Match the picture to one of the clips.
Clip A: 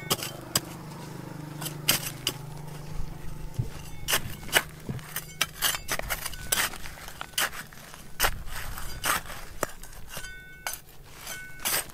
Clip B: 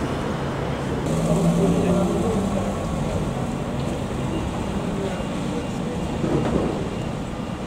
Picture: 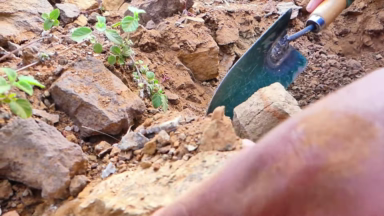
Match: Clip A